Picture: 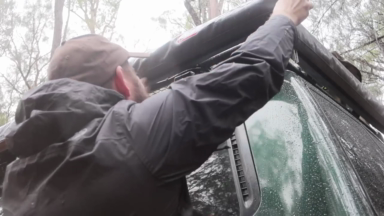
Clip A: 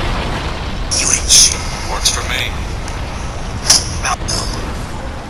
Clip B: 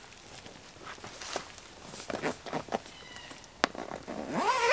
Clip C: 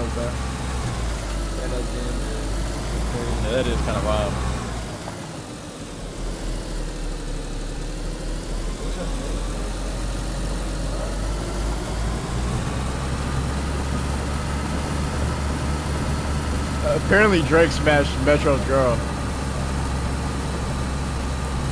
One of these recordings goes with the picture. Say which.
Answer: B